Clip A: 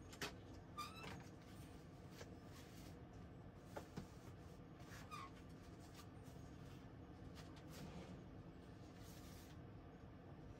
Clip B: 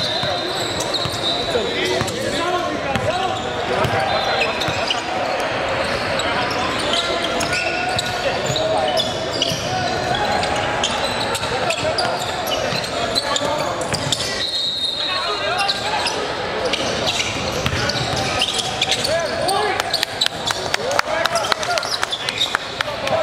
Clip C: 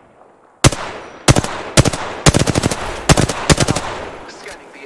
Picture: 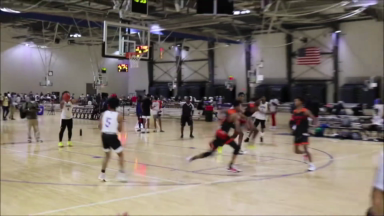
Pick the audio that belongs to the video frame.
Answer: B